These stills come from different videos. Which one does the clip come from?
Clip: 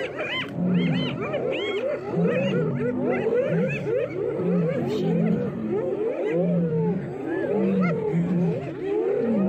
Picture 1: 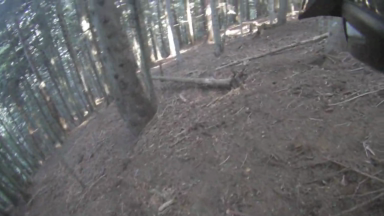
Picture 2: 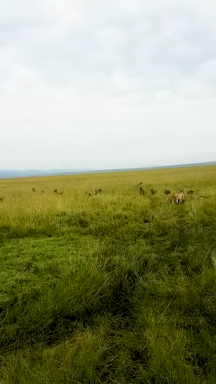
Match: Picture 2